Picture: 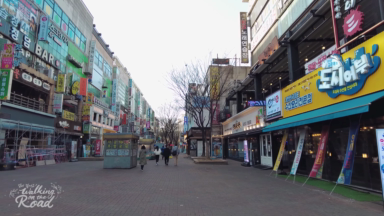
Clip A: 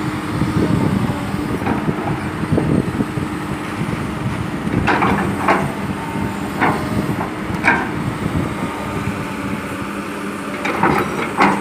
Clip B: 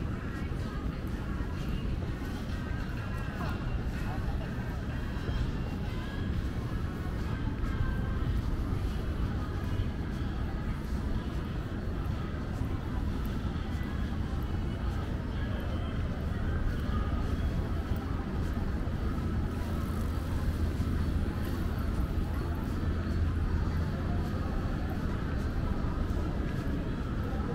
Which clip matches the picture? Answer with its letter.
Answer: B